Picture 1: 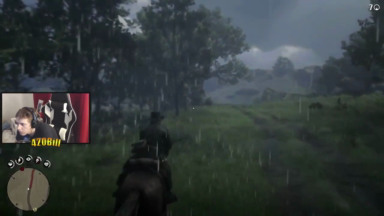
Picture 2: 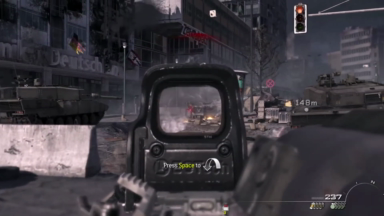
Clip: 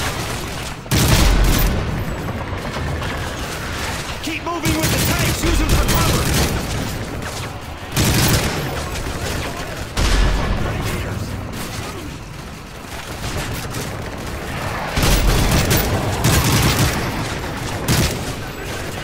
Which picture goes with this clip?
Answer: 2